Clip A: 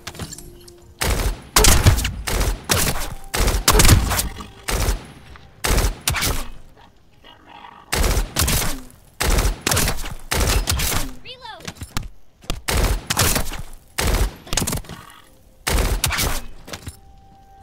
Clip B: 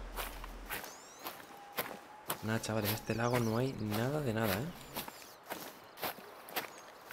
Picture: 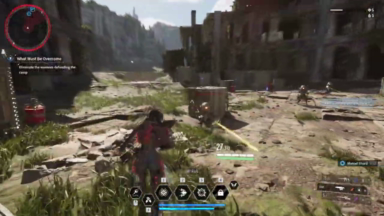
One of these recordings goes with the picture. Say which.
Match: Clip A